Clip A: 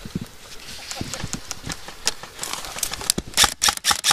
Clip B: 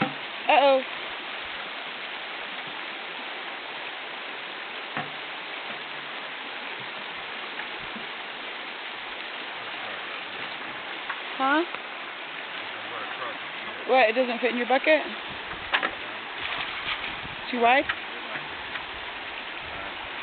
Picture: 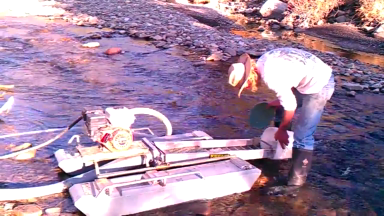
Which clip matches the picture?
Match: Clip B